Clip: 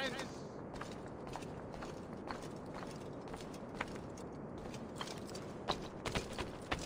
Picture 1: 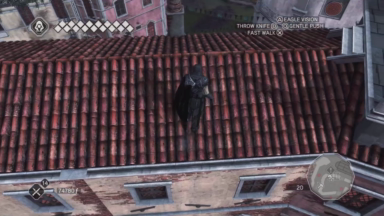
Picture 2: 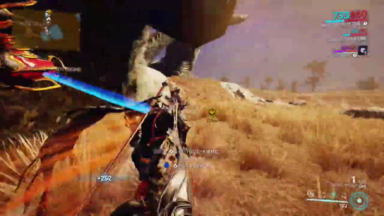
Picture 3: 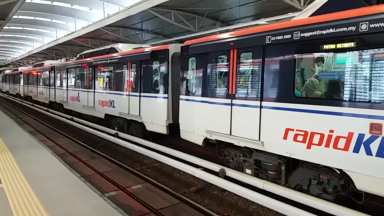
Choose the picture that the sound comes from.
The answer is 1